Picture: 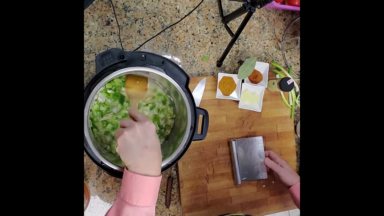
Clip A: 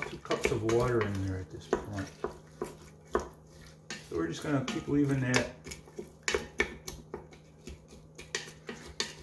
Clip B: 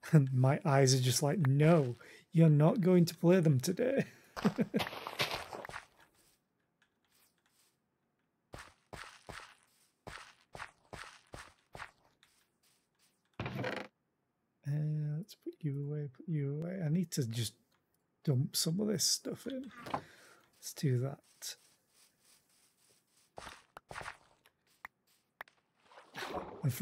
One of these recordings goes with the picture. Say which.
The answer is A